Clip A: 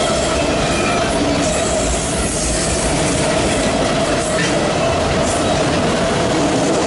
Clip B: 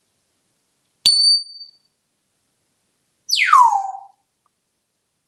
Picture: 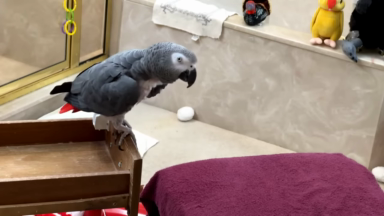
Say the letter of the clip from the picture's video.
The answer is B